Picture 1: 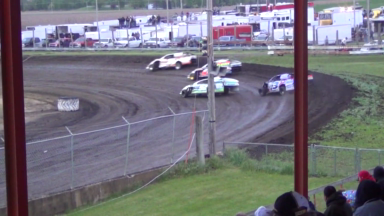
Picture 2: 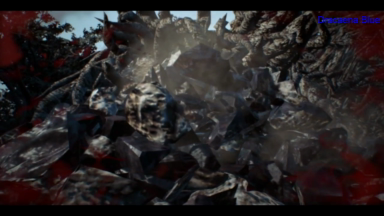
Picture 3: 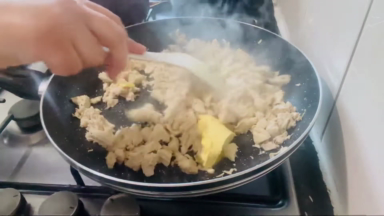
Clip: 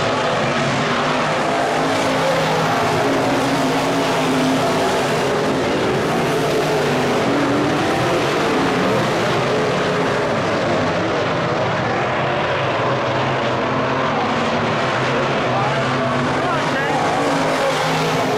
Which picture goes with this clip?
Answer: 1